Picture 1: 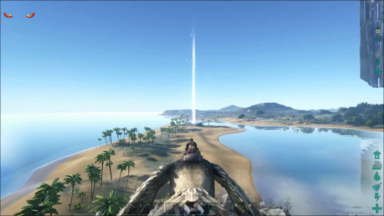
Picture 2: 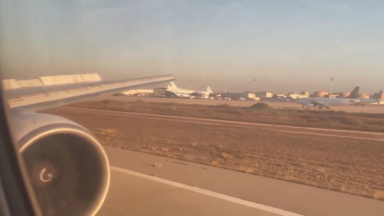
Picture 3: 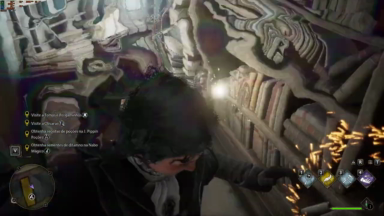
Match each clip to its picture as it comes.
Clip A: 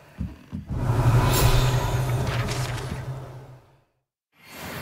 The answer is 3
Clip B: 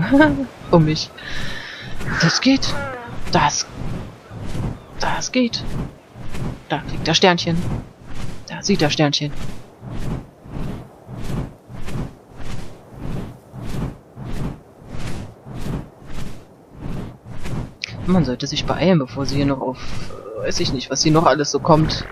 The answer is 1